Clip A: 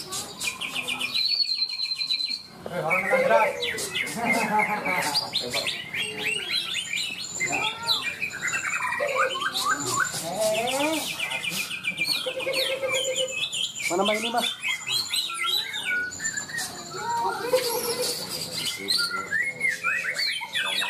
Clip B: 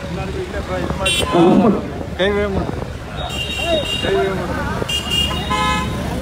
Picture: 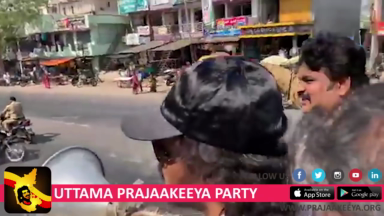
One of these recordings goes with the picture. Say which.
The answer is B